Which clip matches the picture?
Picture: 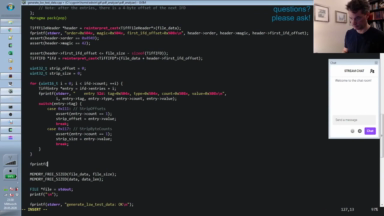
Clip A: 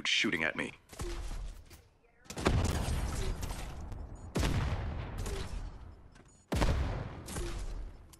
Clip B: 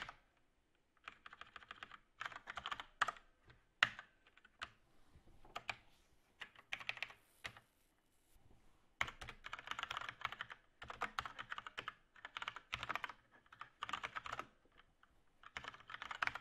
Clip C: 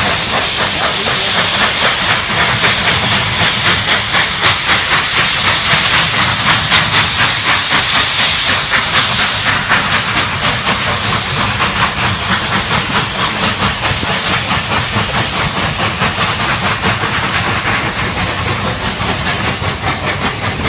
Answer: B